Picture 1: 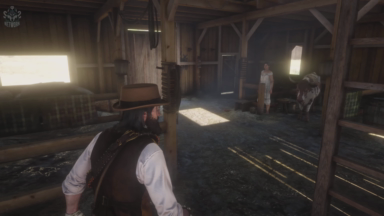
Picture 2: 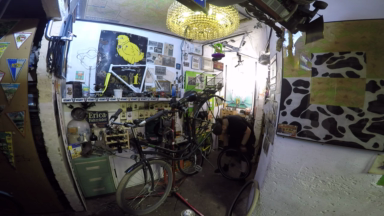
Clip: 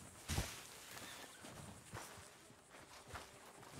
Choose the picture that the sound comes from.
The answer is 1